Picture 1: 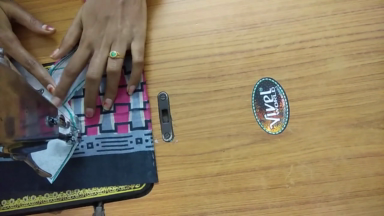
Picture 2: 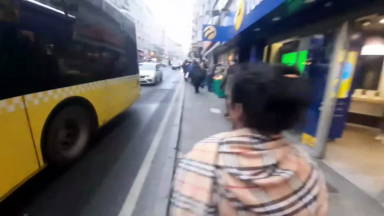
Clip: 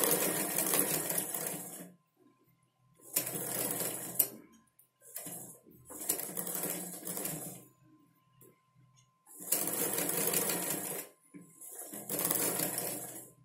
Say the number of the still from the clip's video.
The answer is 1